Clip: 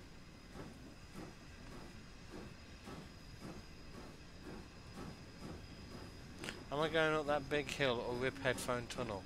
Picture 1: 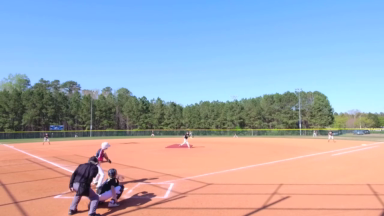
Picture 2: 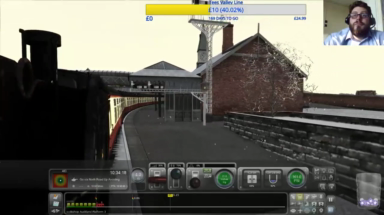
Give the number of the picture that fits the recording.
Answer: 2